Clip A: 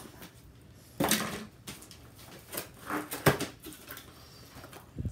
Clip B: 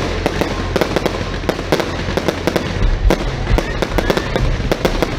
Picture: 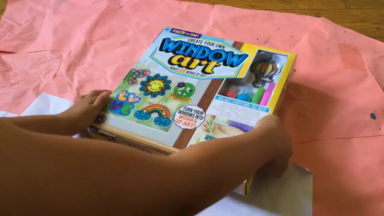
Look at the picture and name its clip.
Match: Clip A